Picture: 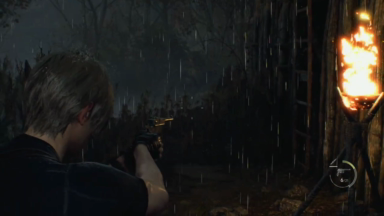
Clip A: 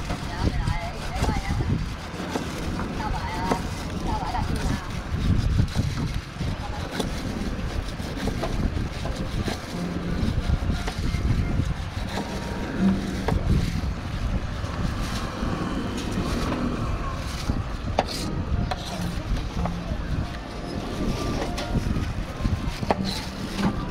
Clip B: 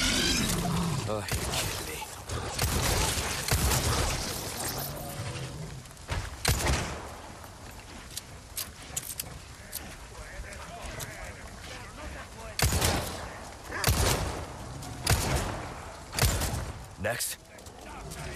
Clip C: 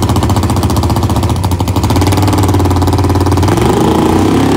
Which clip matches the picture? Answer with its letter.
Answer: B